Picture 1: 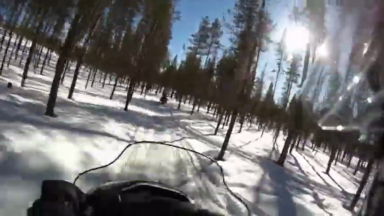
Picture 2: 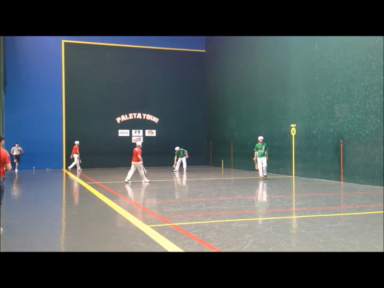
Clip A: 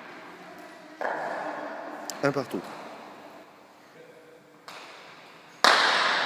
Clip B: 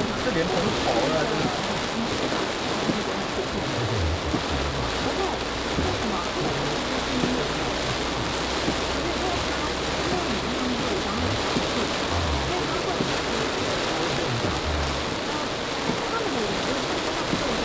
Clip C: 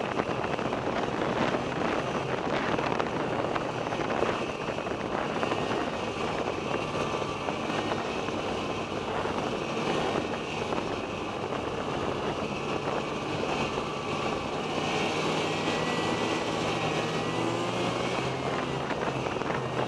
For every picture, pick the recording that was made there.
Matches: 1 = C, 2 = A